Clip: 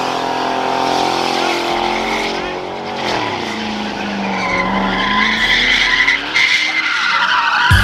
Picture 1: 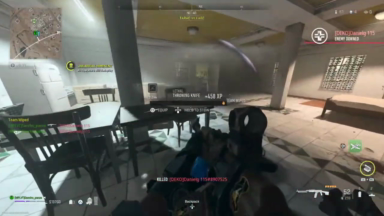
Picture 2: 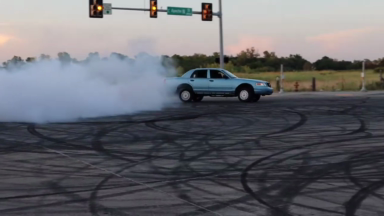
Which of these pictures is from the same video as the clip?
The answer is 2